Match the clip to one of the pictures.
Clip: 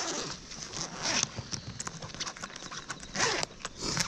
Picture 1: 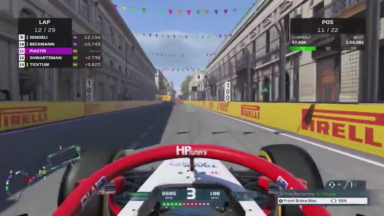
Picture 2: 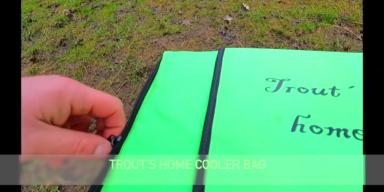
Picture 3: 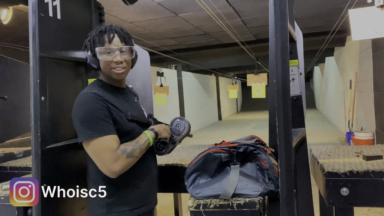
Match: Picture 2